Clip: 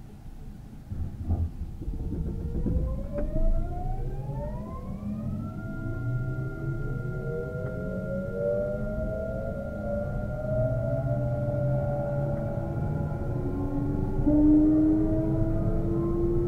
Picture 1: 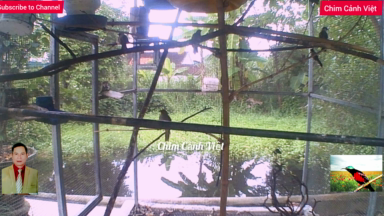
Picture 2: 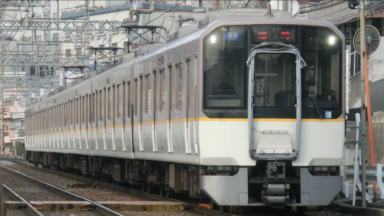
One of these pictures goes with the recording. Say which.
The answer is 2